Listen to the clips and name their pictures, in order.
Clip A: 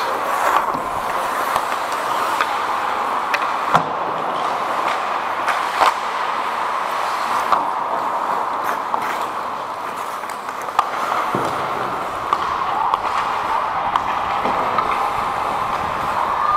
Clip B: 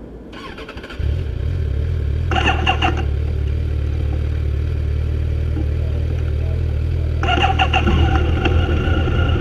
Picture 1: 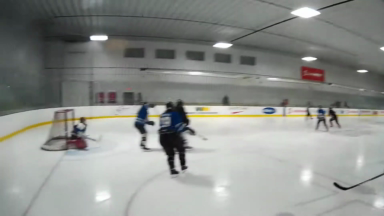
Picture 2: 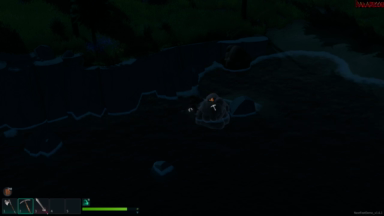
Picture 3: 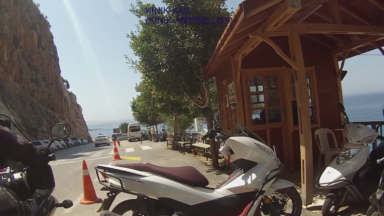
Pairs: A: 1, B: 3